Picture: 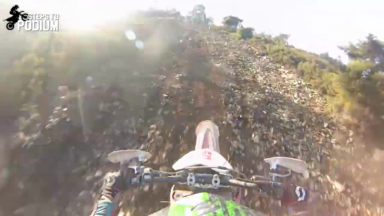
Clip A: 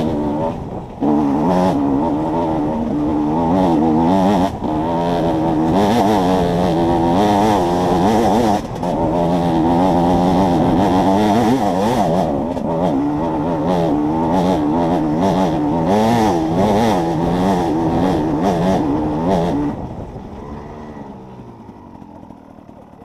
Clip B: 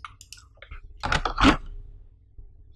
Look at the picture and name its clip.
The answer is A